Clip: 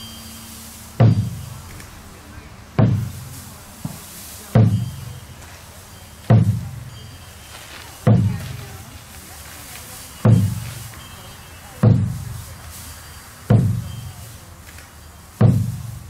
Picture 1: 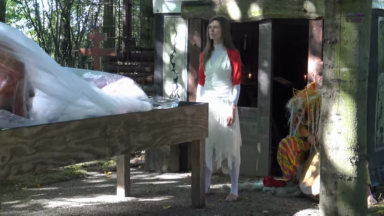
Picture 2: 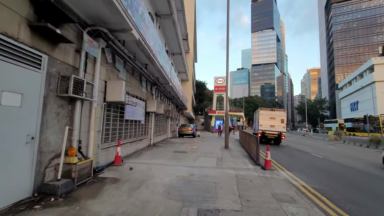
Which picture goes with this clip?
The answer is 1